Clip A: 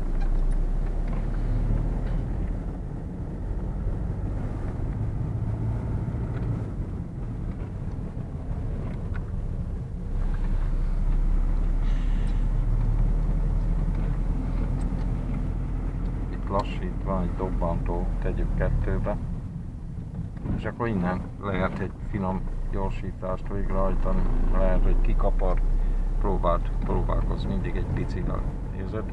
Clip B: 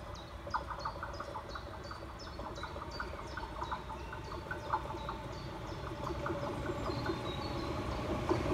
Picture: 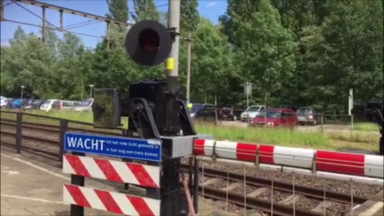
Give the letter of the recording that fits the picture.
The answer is B